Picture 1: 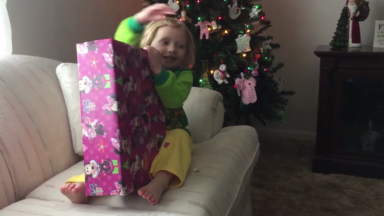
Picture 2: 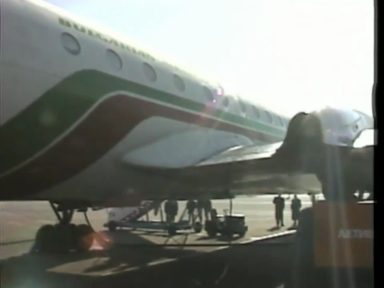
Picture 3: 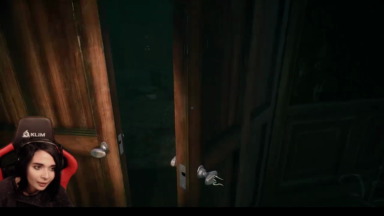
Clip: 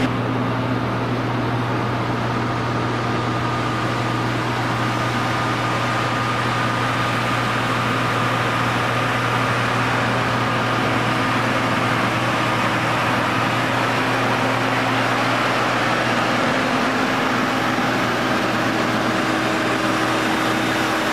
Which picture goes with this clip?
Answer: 2